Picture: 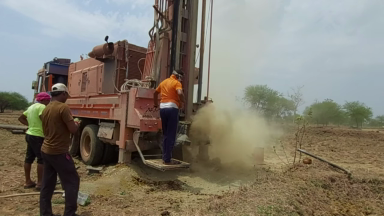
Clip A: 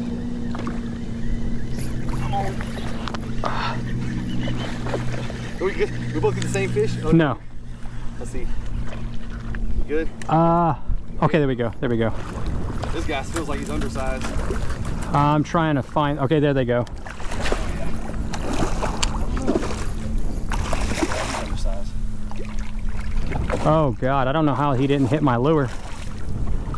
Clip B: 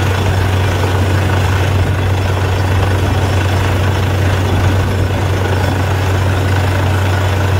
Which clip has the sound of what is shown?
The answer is B